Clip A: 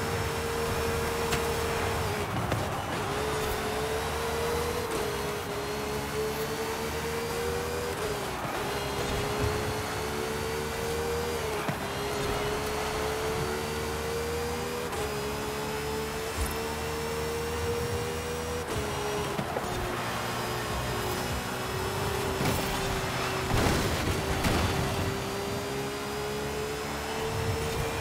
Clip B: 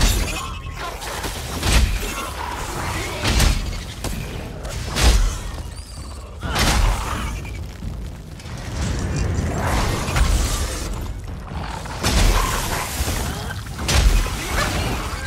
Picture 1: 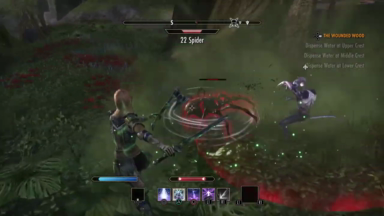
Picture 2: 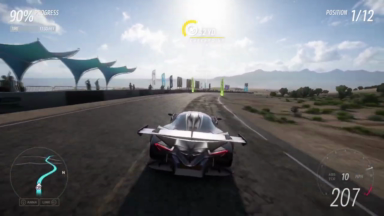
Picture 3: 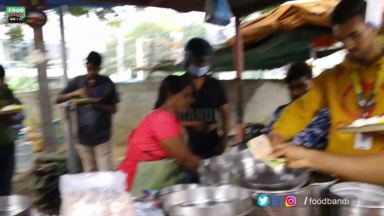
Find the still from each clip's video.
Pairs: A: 2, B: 1